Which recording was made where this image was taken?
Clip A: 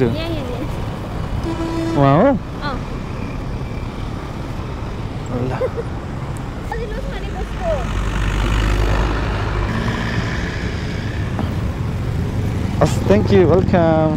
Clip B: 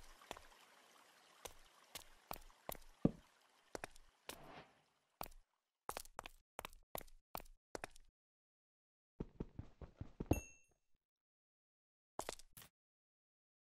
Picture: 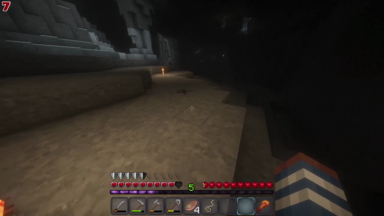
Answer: B